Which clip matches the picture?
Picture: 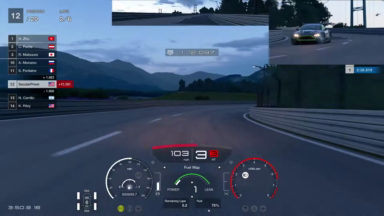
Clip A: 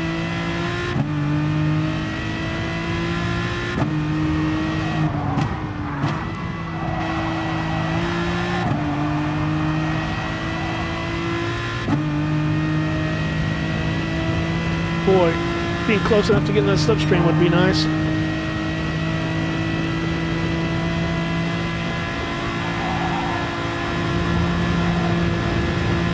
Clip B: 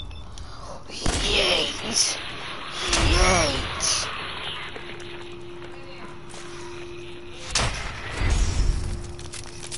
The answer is A